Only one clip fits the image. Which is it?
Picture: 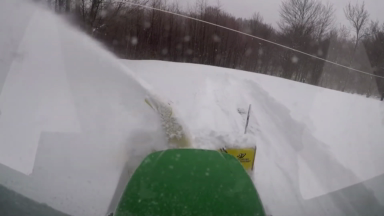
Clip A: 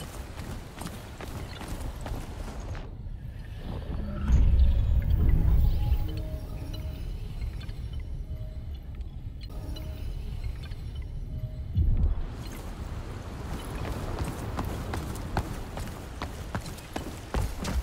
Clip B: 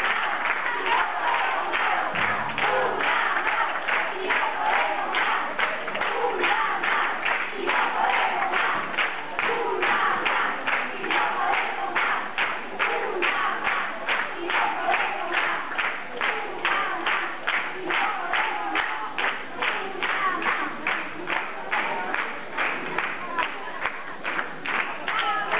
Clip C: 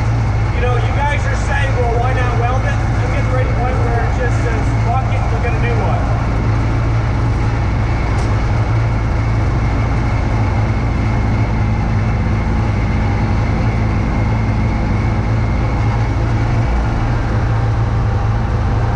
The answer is C